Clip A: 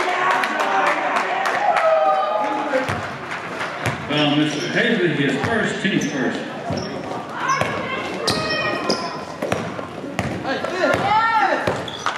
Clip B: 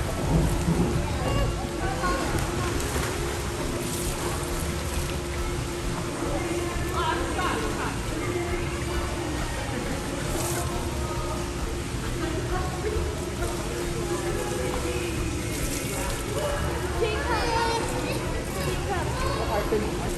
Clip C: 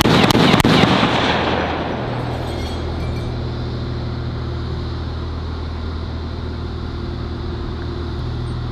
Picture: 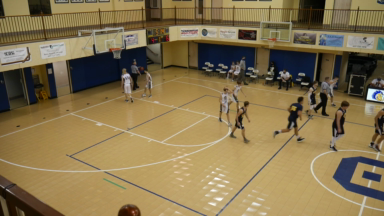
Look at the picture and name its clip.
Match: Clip A